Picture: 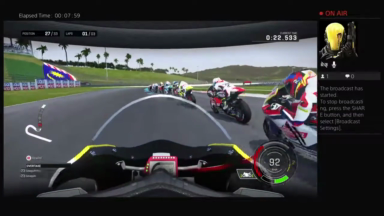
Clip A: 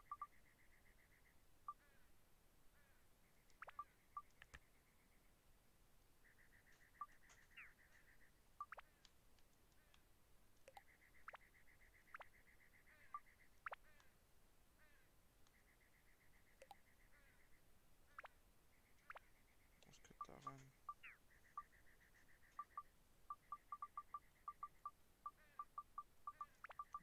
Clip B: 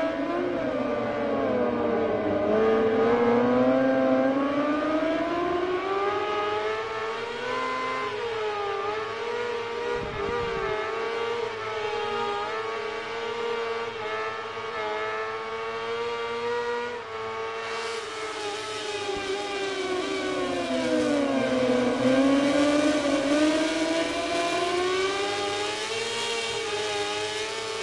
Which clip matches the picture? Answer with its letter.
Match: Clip B